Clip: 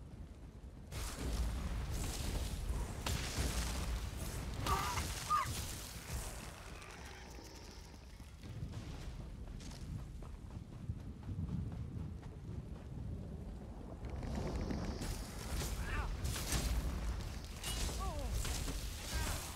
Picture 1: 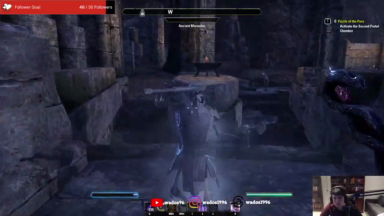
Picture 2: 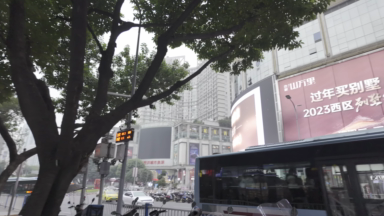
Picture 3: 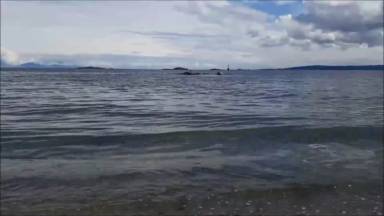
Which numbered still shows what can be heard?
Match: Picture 1